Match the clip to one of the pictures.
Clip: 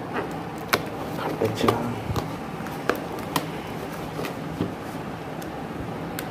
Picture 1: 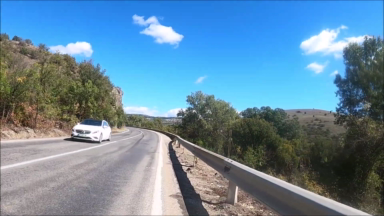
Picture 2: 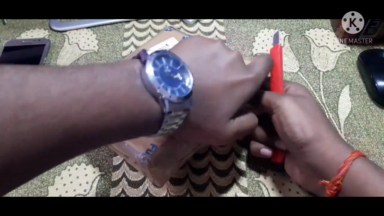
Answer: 2